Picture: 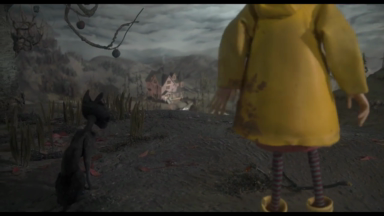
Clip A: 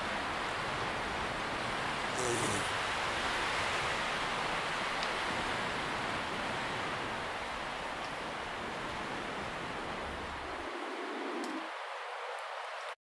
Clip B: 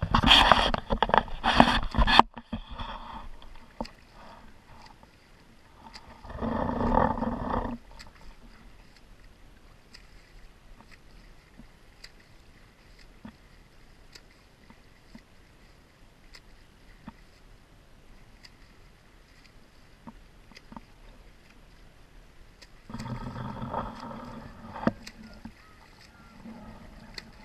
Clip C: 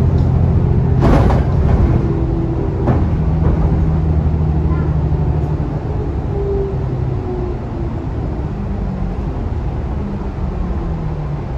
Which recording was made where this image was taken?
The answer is A